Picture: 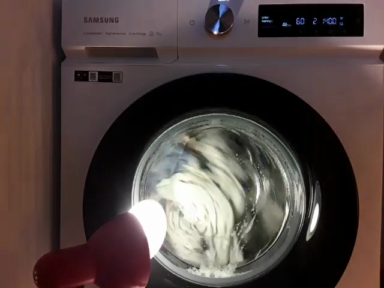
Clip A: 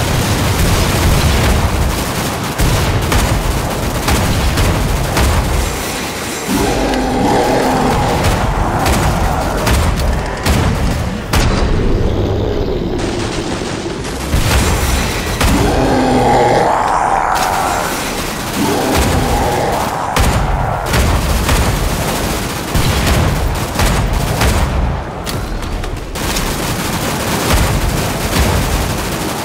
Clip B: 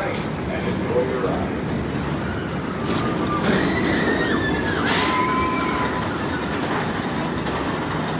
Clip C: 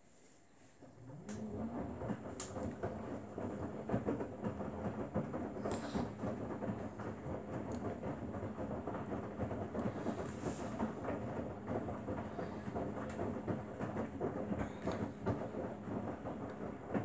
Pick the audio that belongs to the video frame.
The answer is C